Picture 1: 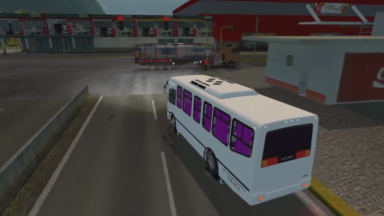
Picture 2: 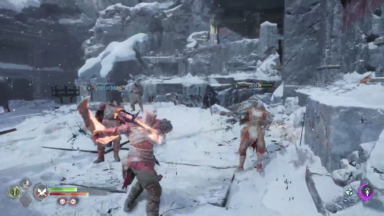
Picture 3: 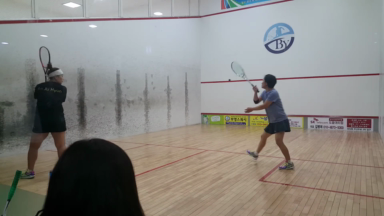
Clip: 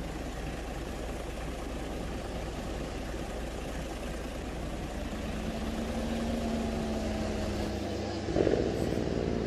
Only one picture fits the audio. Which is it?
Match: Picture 1